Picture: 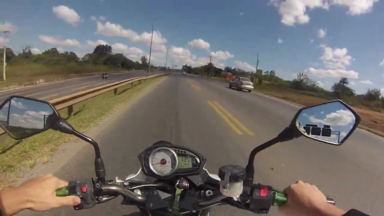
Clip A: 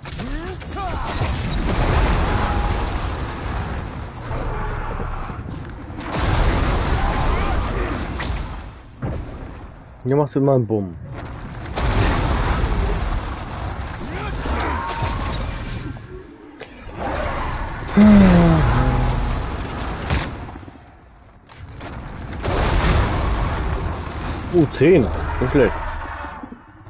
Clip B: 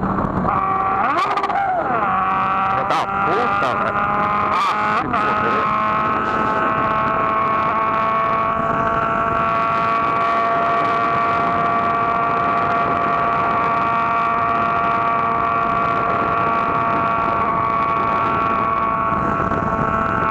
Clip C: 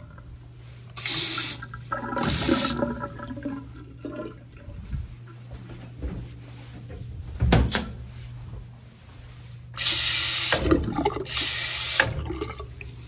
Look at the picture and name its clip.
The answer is B